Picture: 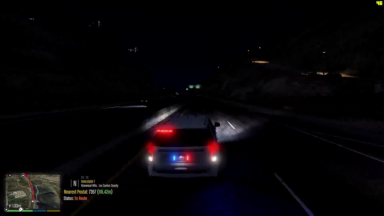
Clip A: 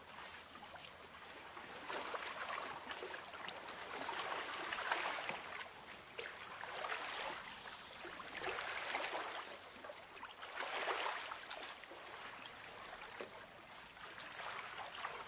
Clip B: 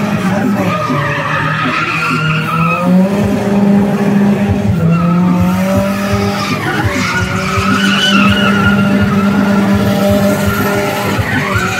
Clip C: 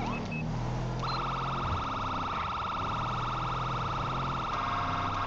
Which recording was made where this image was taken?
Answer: C